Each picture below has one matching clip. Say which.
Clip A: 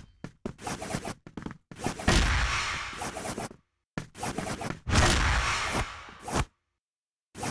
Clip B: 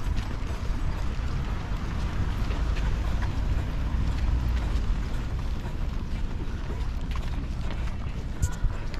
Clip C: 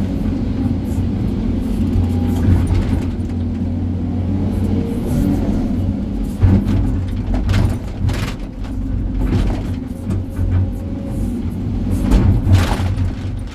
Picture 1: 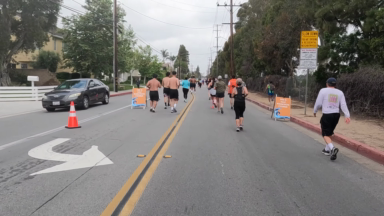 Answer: B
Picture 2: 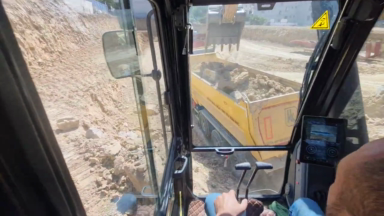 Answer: C